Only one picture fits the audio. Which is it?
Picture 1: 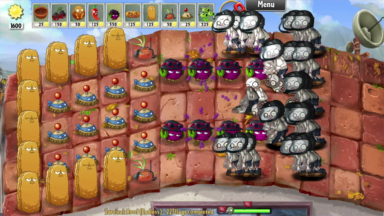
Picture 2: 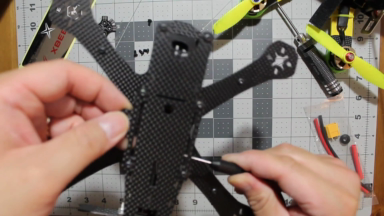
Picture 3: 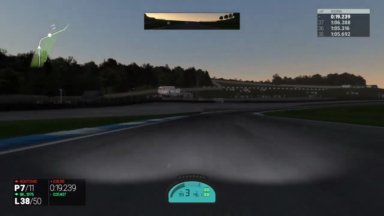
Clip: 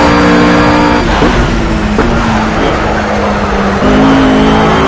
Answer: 3